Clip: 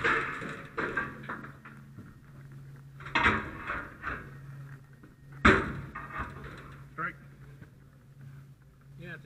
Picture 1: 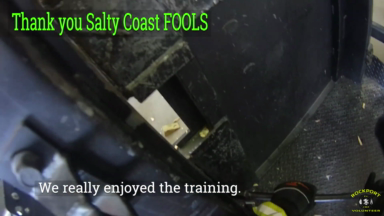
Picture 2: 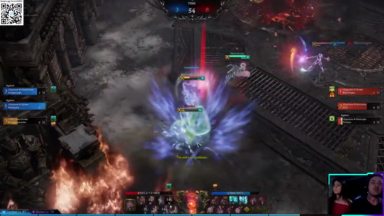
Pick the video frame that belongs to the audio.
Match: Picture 1